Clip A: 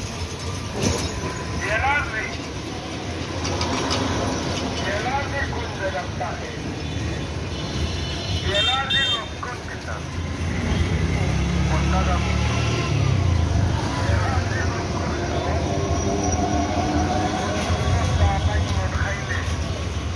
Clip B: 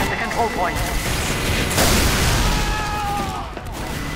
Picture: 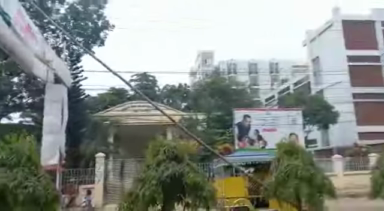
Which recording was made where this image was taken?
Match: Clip A